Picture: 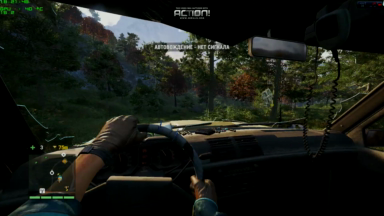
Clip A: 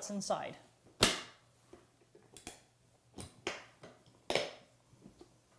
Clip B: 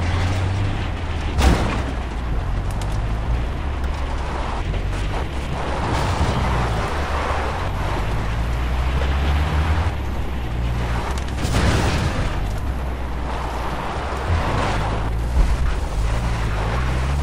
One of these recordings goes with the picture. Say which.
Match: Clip B